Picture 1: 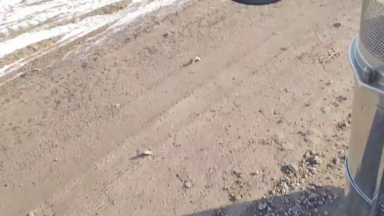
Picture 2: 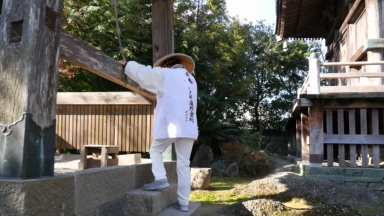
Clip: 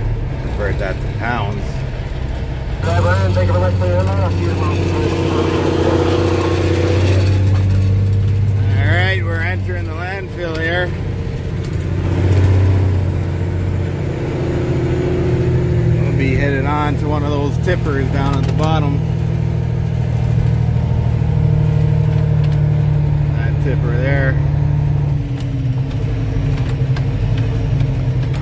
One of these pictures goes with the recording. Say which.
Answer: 1